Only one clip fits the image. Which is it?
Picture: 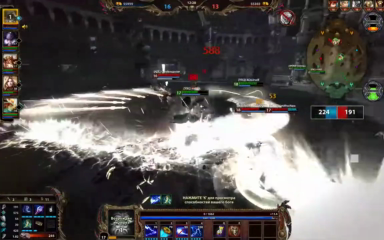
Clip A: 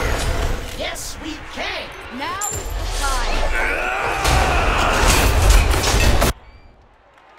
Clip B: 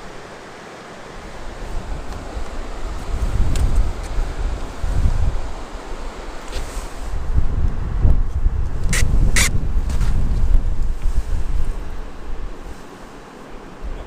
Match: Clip A